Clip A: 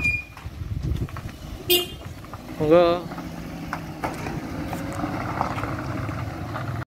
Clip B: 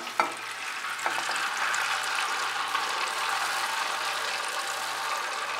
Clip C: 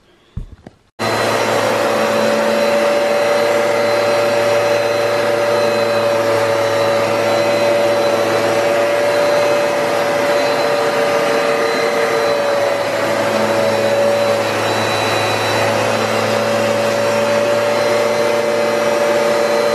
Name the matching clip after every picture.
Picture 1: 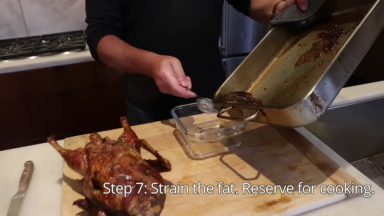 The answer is B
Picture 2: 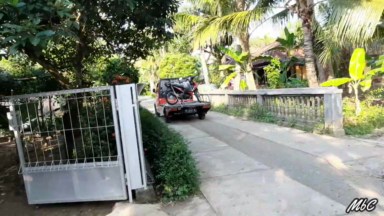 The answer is A